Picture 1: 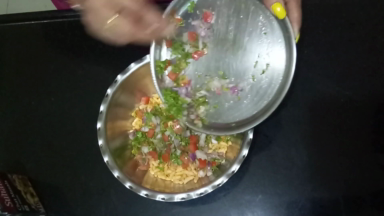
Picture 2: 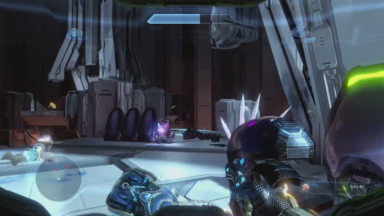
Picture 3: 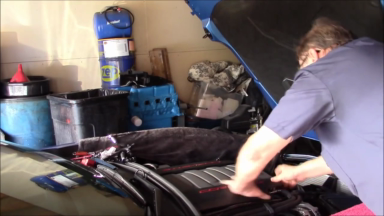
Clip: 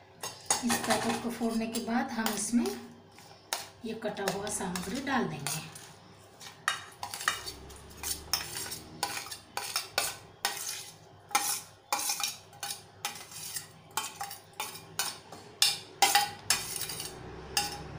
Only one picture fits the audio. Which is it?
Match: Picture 1